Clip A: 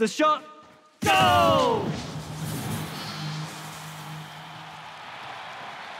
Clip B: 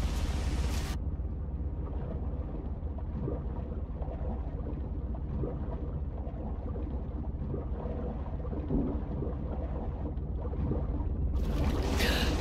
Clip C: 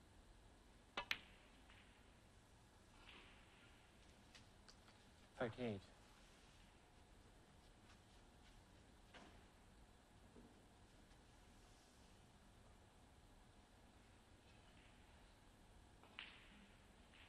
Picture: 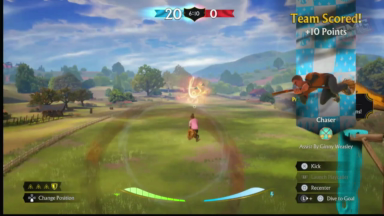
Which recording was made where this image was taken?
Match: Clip A